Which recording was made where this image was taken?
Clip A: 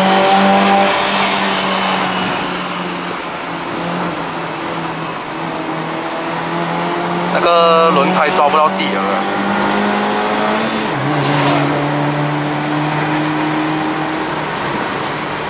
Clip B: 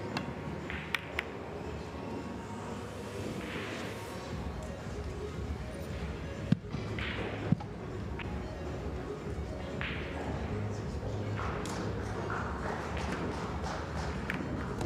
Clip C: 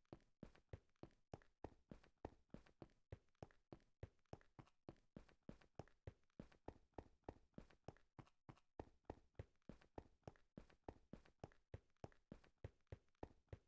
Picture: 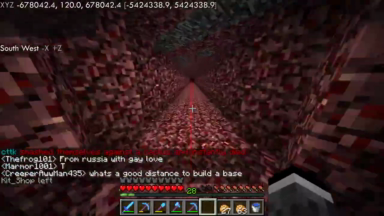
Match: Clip C